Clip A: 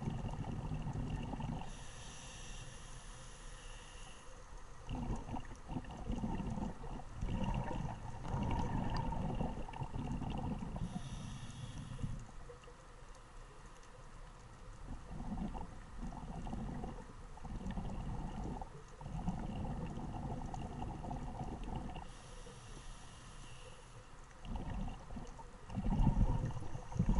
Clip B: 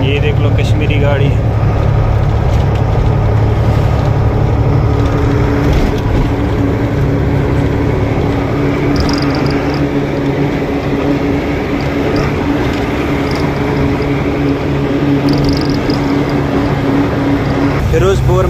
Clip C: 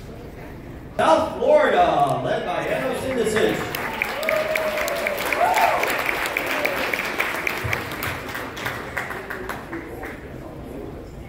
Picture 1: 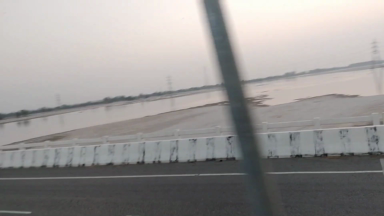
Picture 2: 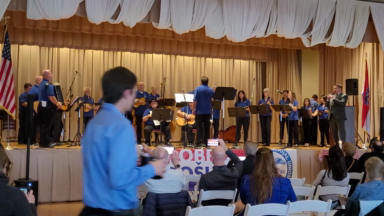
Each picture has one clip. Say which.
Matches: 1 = B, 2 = C